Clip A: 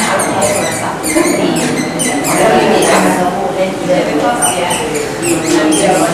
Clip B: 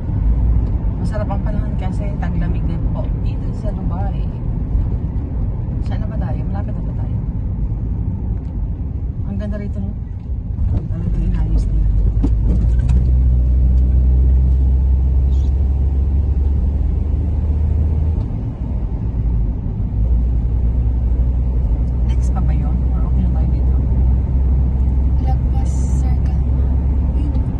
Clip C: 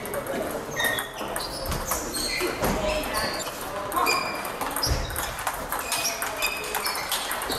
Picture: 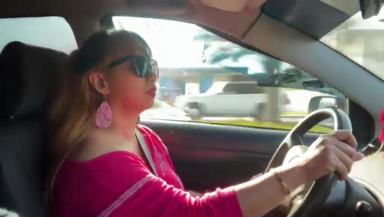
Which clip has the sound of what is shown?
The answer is B